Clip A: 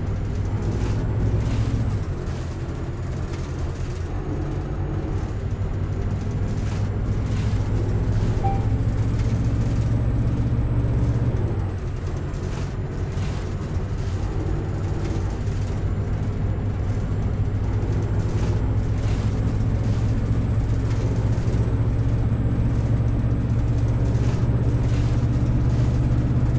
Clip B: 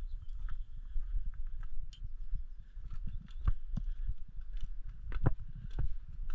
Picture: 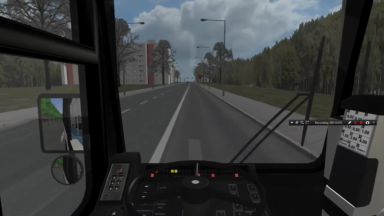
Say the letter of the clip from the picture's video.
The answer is A